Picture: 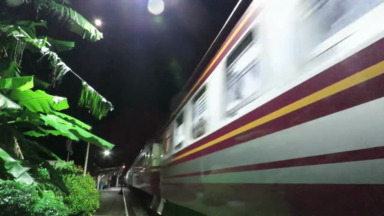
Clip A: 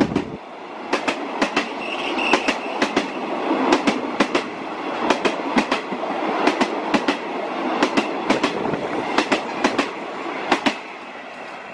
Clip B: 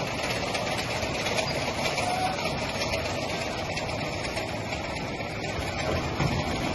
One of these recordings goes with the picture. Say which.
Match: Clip A